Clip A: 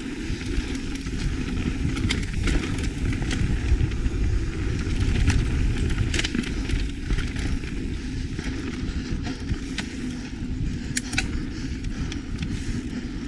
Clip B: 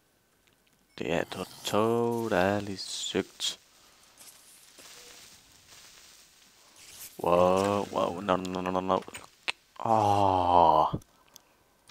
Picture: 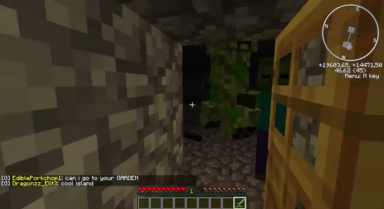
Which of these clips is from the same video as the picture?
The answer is B